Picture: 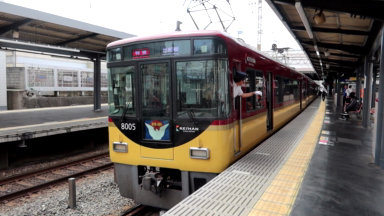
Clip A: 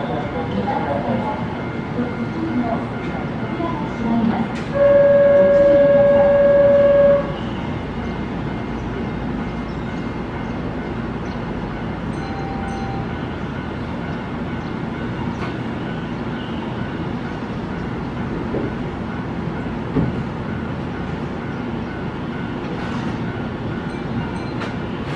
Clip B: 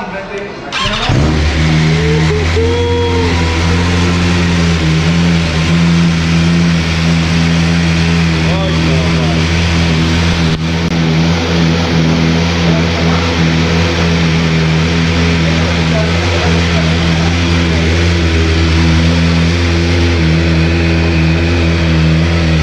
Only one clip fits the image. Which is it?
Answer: A